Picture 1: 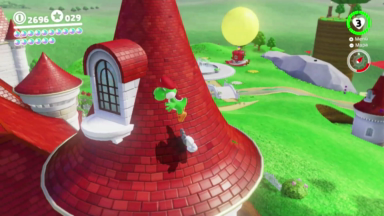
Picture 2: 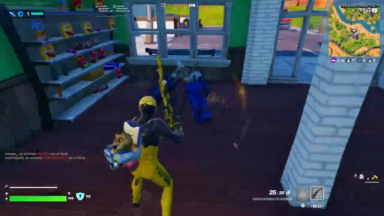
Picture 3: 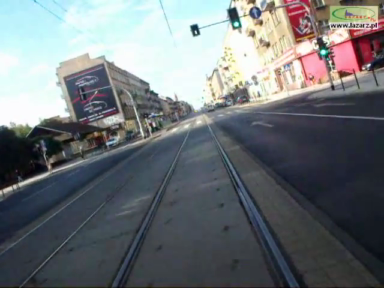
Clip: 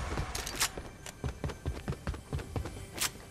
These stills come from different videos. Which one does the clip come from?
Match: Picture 2